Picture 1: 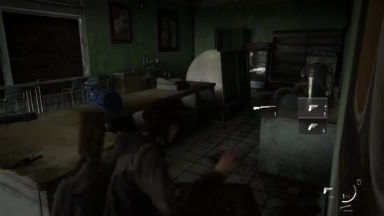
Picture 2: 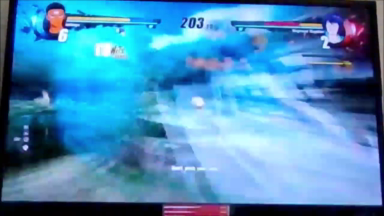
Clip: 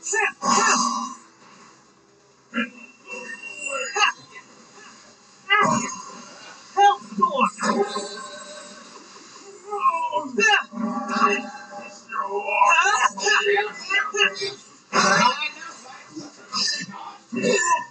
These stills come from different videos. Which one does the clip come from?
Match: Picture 2